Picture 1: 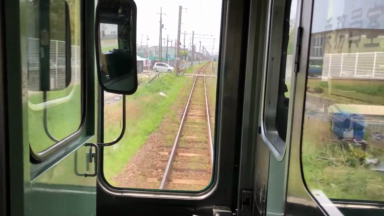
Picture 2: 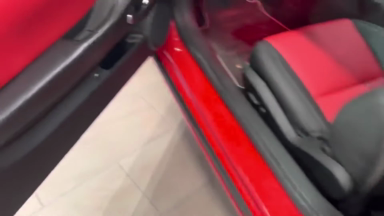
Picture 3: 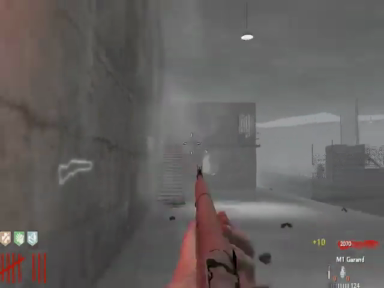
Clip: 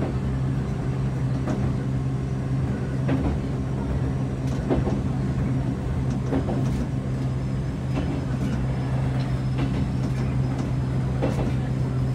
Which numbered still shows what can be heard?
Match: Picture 1